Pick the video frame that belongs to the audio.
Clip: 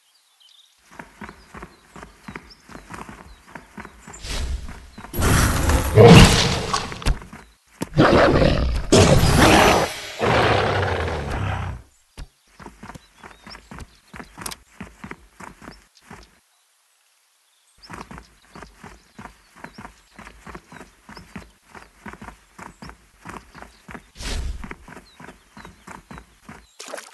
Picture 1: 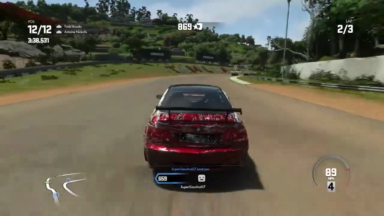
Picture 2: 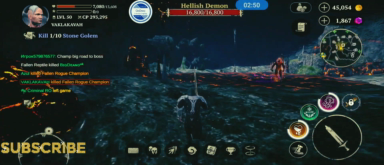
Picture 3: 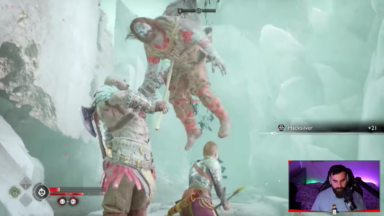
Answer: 2